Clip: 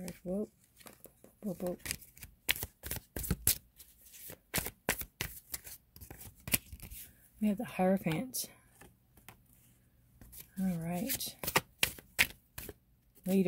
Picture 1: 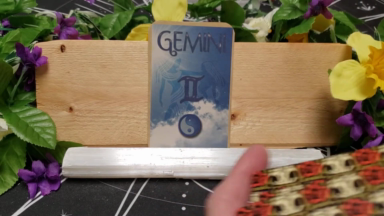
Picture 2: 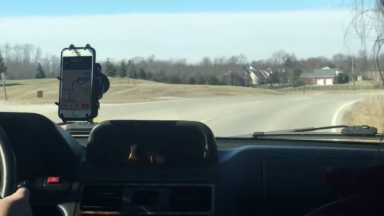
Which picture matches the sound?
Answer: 1